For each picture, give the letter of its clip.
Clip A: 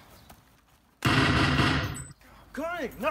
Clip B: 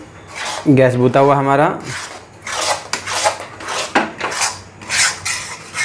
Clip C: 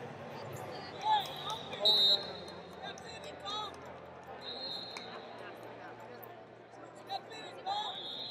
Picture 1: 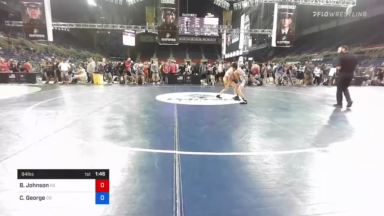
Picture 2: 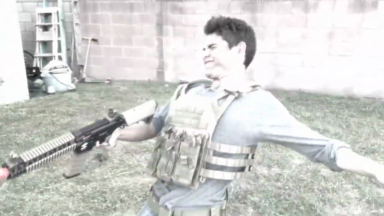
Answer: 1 C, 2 A